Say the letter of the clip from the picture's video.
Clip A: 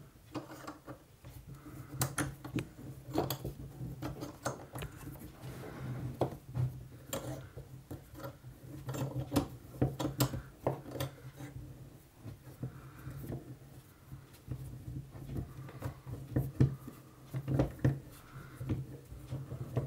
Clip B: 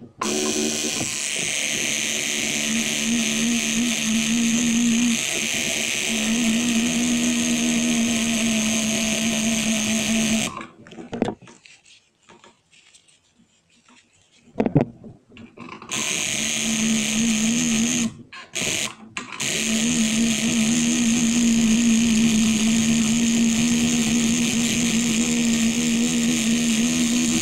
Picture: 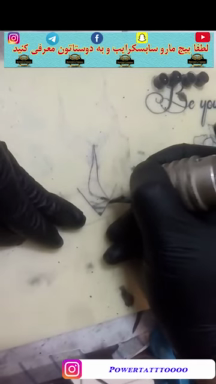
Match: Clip B